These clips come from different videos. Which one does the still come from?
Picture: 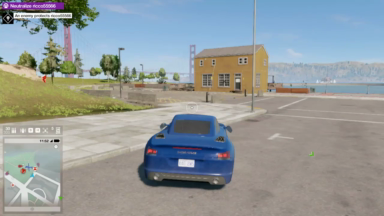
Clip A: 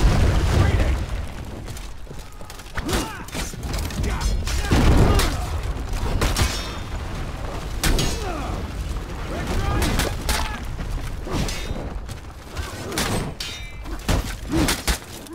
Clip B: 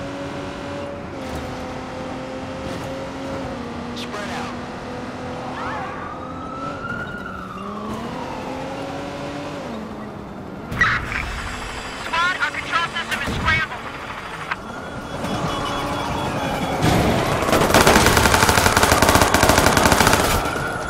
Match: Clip B